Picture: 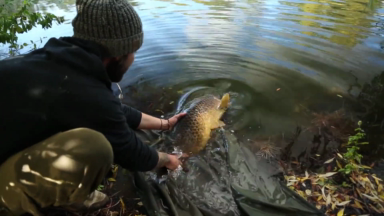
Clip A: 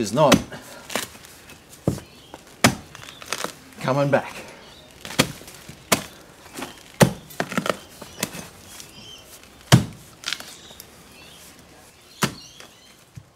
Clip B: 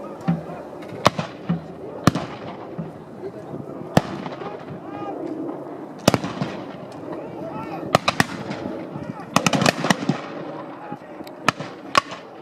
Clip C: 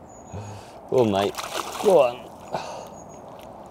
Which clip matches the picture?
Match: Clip C